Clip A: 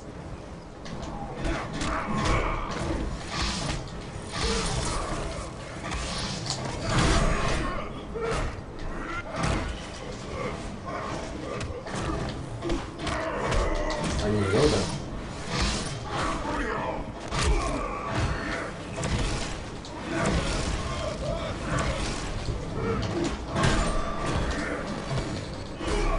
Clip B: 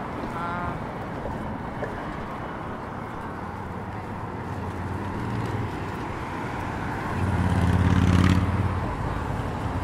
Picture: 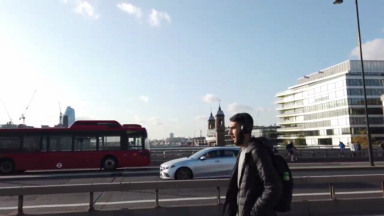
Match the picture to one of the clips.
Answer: B